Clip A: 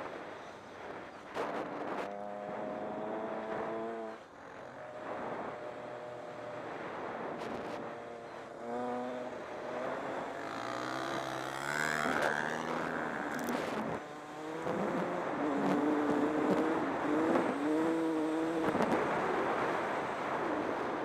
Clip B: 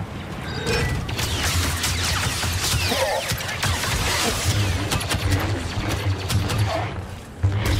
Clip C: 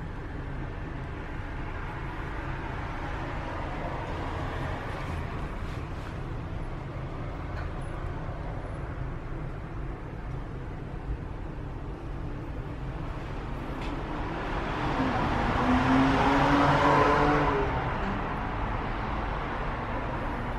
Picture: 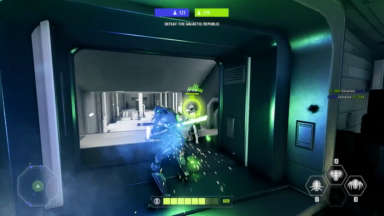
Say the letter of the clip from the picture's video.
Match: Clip B